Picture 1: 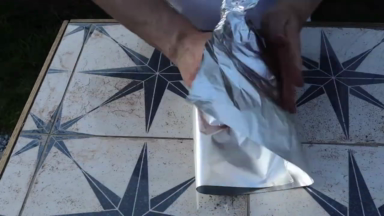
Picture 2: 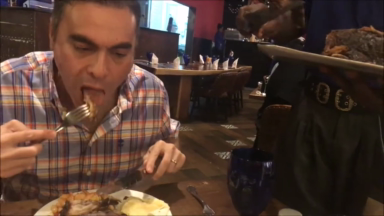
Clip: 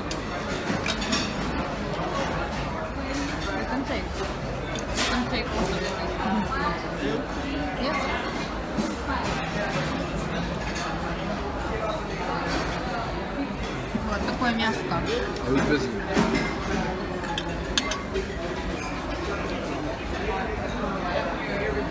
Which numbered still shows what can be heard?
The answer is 2